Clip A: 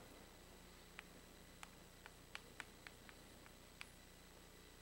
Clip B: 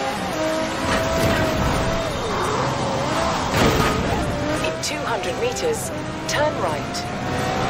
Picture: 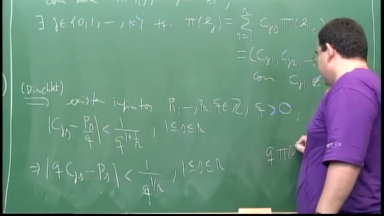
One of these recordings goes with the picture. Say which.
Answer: A